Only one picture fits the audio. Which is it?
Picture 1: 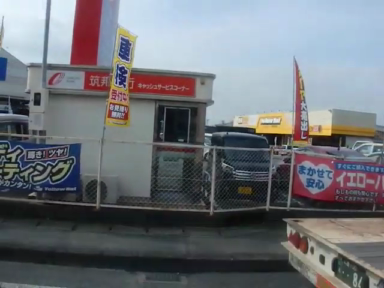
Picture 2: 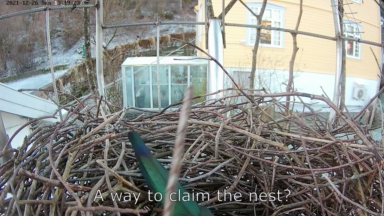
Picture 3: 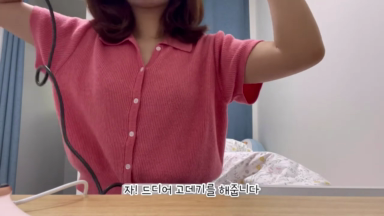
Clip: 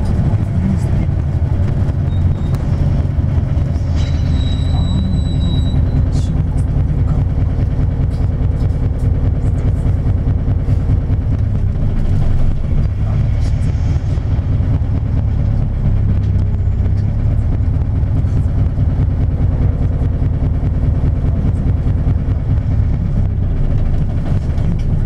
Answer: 1